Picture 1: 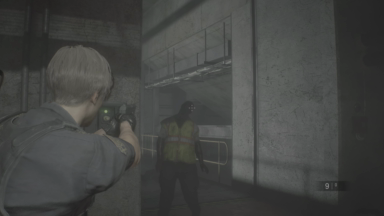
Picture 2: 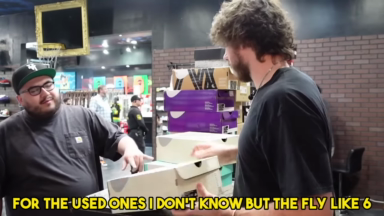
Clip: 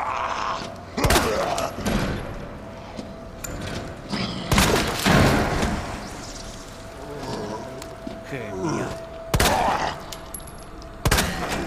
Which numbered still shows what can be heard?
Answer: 1